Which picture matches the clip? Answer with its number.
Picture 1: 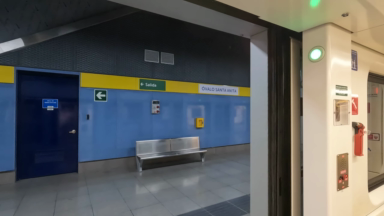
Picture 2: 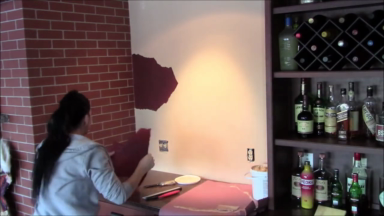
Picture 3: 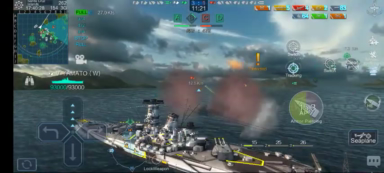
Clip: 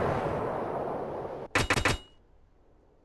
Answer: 3